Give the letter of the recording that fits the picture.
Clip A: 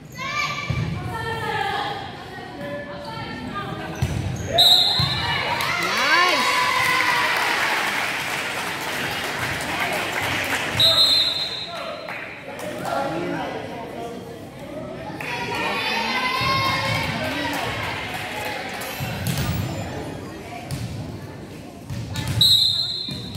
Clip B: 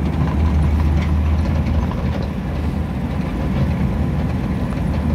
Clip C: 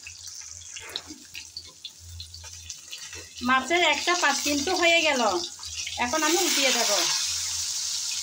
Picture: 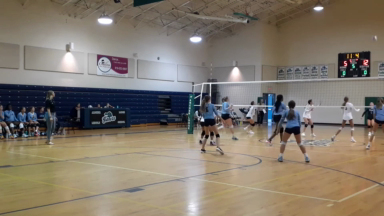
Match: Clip A